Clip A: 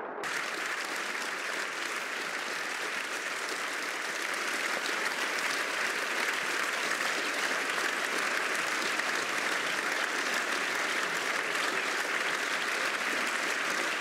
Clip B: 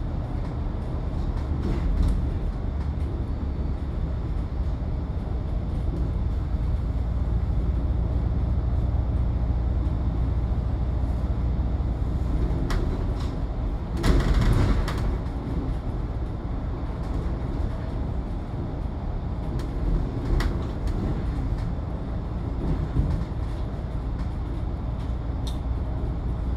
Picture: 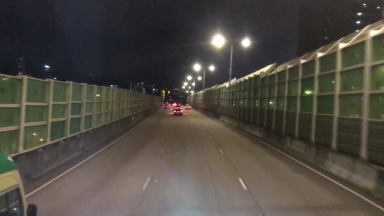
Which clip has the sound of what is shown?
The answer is B